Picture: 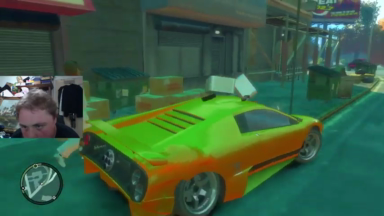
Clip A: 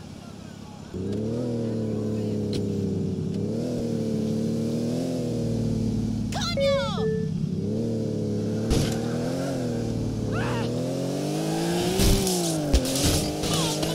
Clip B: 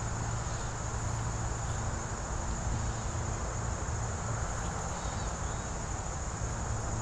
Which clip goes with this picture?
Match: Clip A